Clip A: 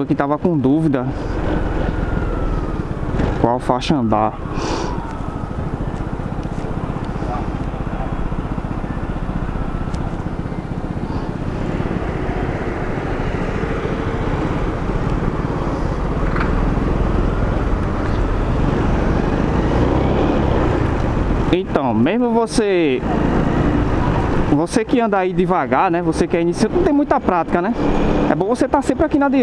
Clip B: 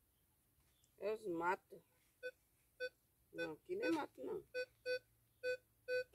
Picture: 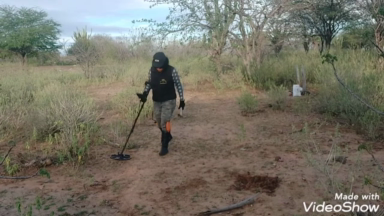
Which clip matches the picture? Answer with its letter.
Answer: B